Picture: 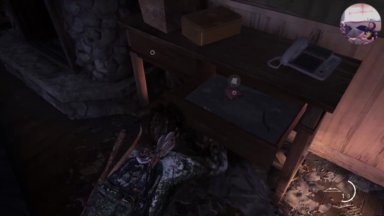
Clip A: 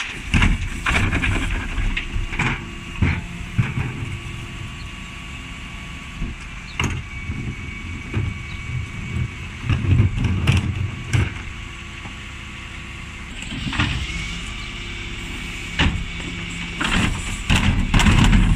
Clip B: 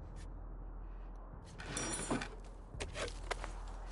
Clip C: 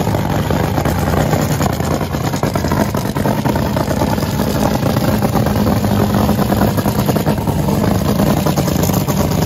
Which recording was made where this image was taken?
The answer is B